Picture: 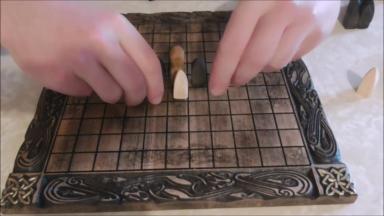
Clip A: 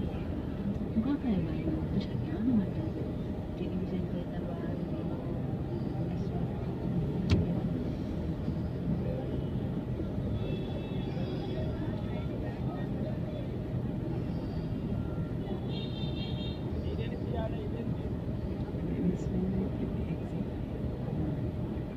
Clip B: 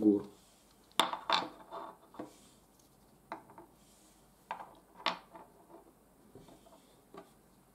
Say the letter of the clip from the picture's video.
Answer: B